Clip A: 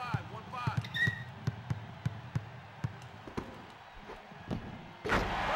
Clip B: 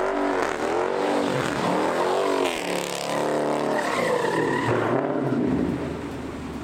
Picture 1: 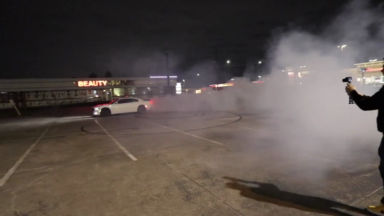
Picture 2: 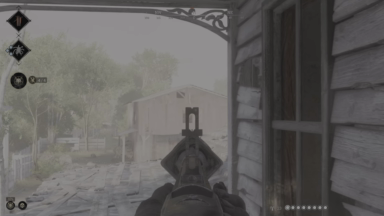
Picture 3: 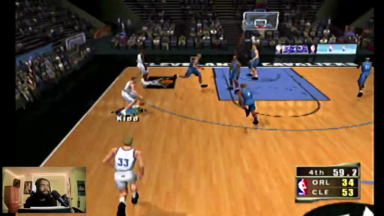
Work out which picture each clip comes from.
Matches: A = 3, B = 1